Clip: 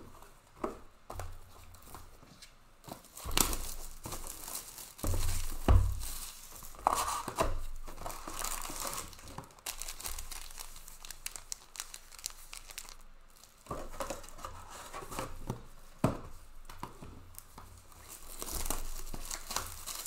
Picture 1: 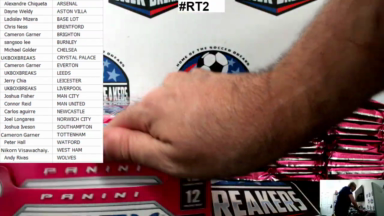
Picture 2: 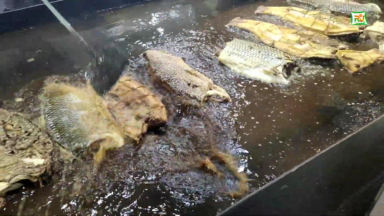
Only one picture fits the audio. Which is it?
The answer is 1